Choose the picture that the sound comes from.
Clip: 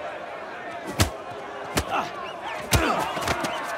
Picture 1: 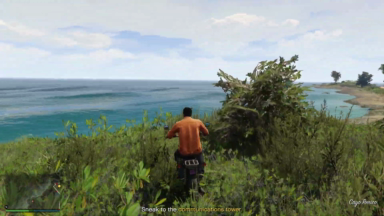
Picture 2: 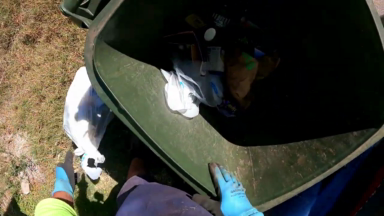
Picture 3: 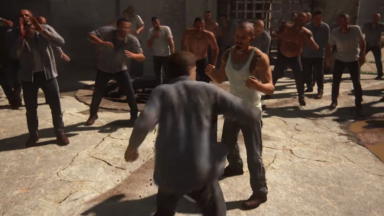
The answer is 3